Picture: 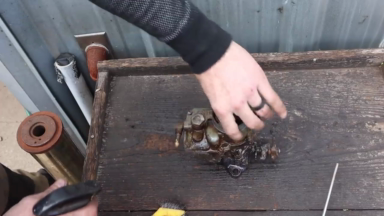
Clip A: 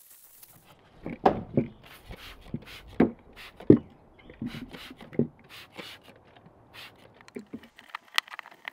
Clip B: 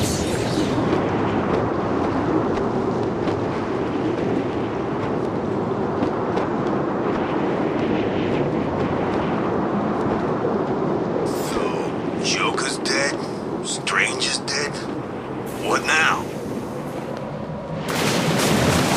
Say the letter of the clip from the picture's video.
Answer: A